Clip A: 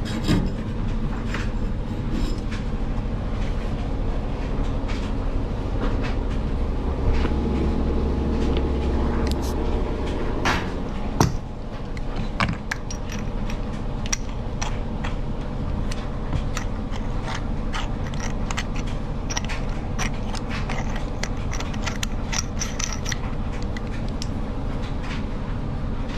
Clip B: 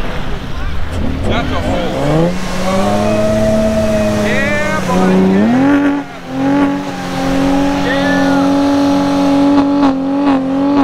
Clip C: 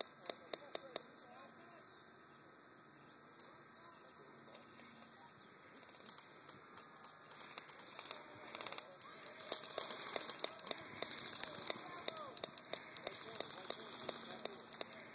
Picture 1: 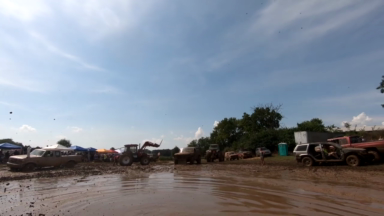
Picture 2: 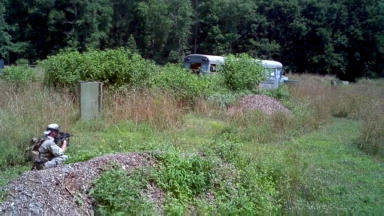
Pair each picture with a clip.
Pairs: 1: B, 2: C